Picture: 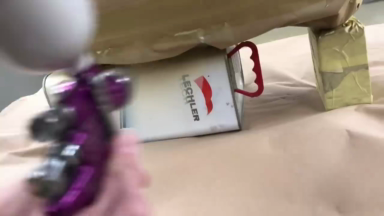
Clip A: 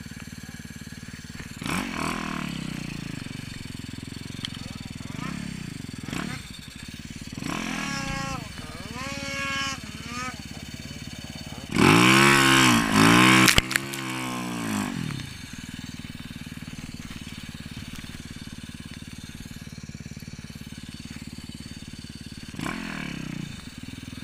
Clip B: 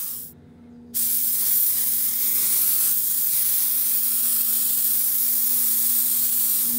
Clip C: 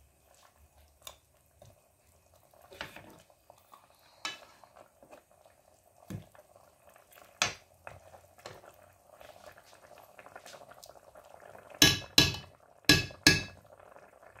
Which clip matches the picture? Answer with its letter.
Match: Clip B